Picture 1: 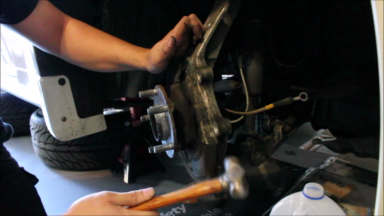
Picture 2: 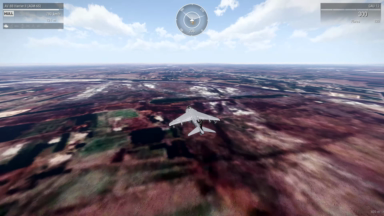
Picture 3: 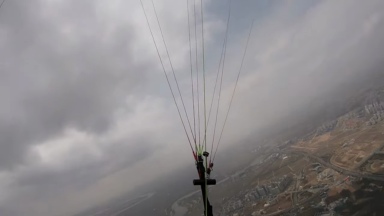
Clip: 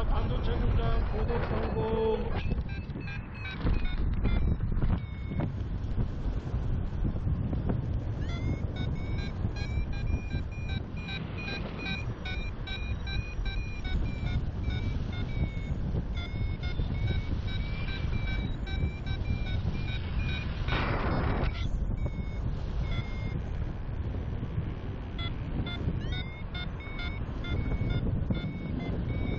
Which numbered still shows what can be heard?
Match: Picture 3